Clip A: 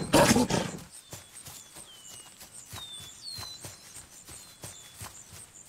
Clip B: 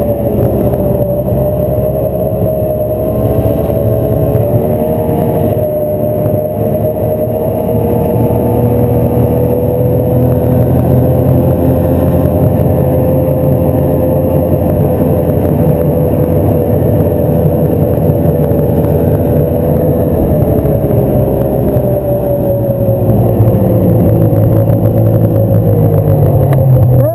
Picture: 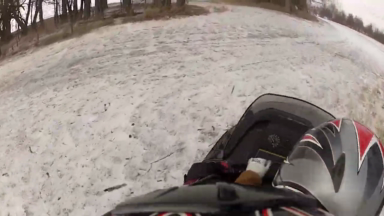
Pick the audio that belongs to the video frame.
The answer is B